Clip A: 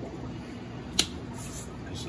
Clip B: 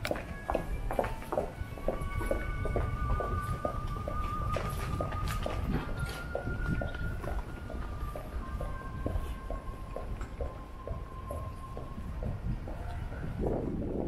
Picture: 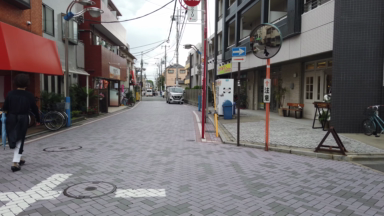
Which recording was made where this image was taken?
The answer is B